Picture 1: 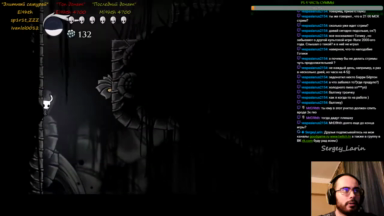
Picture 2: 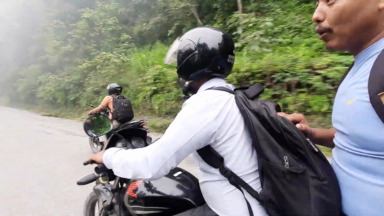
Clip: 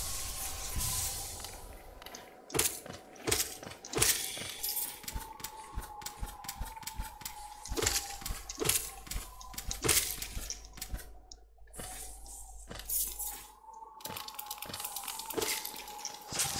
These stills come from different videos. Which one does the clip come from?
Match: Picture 1